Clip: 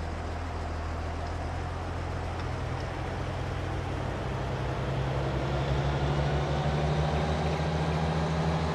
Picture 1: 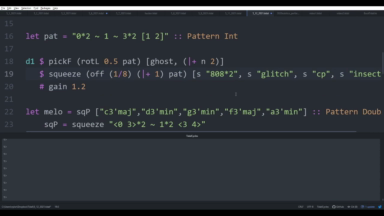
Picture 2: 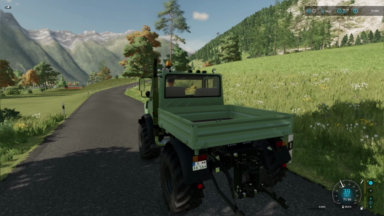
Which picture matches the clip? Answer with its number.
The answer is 2